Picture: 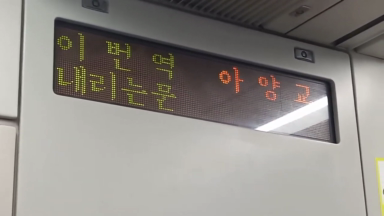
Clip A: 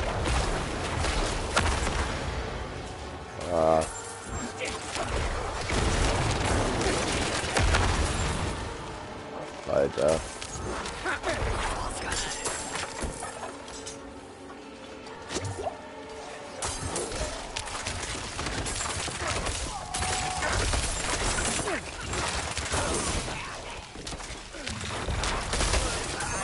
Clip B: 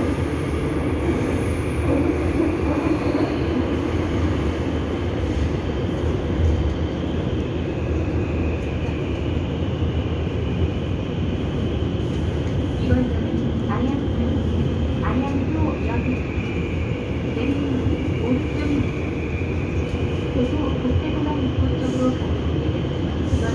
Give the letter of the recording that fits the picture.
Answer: B